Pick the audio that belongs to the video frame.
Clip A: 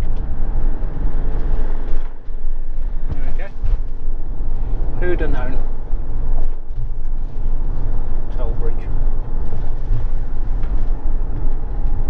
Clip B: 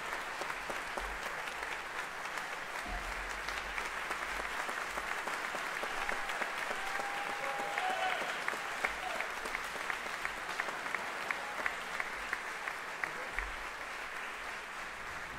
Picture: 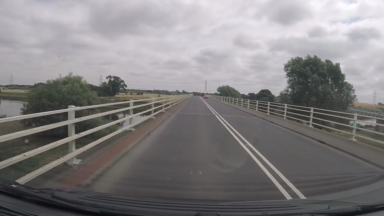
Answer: A